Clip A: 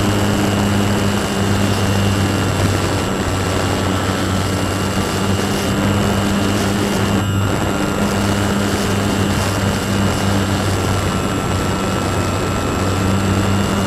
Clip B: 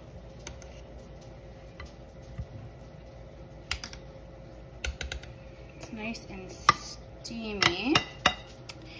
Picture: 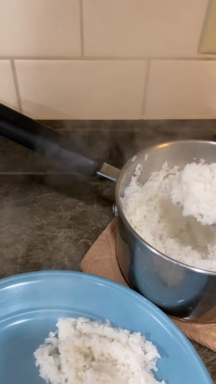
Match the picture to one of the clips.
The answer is B